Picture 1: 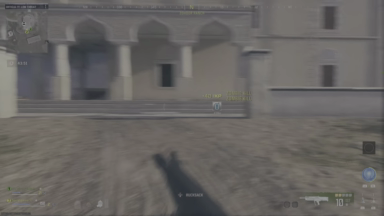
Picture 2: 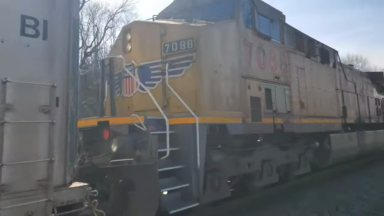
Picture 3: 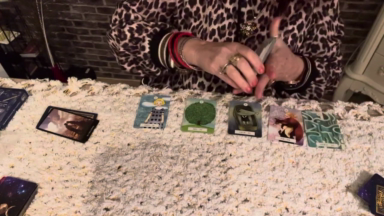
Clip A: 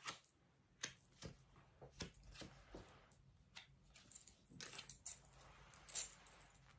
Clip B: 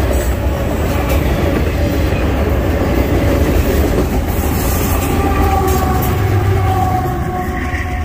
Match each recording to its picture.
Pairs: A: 3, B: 2